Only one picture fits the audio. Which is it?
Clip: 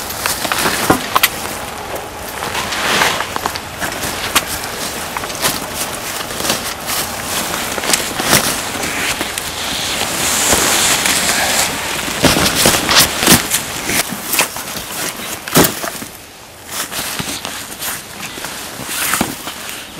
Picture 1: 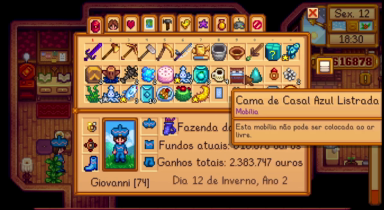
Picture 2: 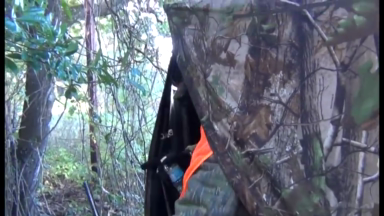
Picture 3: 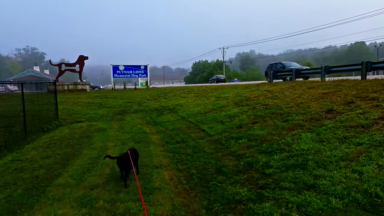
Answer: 2